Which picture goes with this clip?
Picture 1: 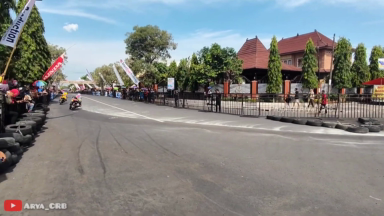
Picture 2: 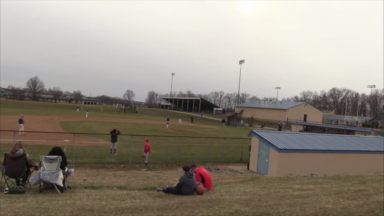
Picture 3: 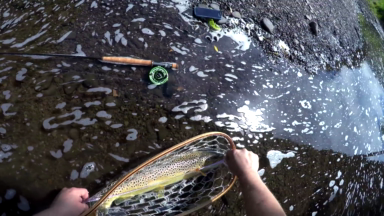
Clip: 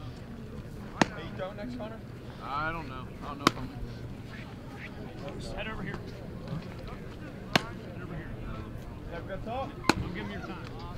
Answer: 2